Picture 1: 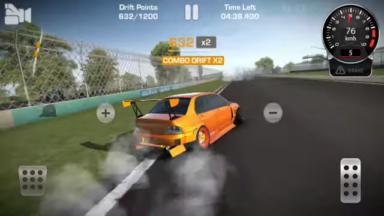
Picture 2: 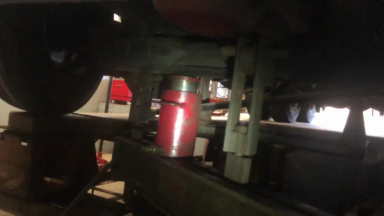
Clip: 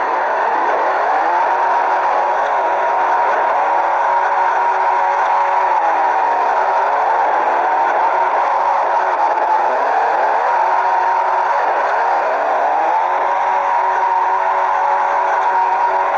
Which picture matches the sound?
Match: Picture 1